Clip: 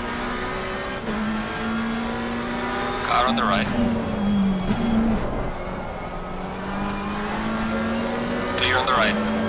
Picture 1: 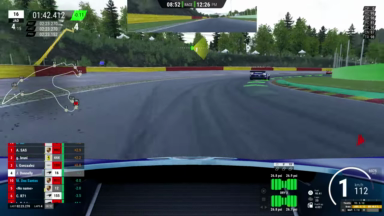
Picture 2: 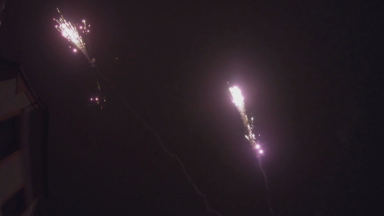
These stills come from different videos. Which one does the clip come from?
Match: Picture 1